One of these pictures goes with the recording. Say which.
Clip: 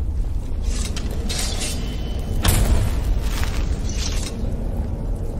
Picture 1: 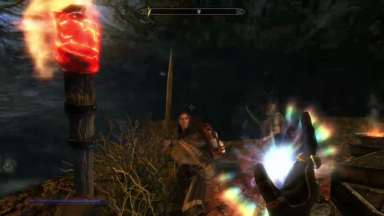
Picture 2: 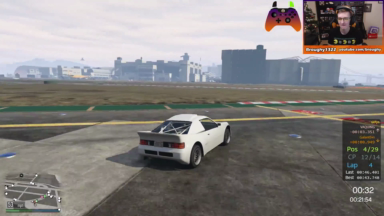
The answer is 1